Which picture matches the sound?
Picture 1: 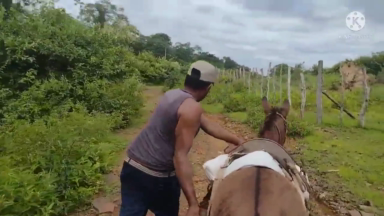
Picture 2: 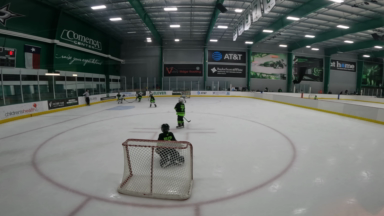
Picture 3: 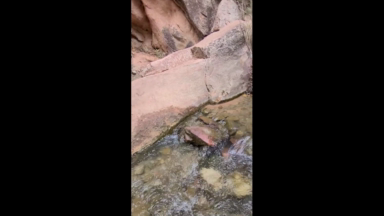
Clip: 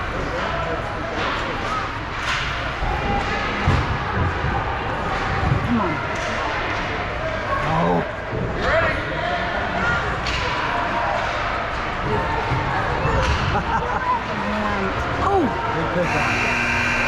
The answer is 2